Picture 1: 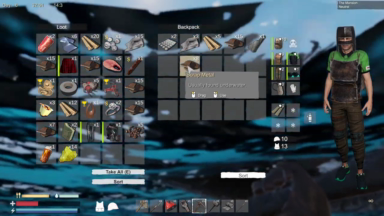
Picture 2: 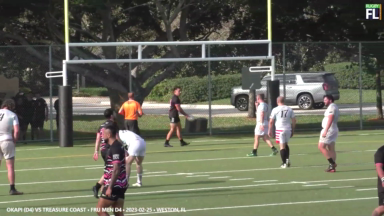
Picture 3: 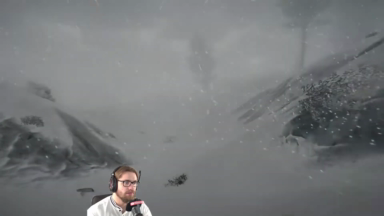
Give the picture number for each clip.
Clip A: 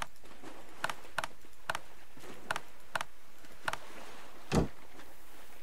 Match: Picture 1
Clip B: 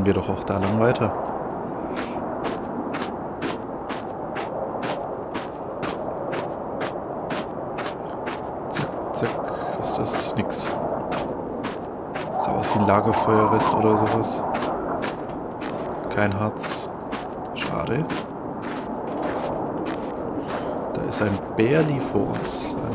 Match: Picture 3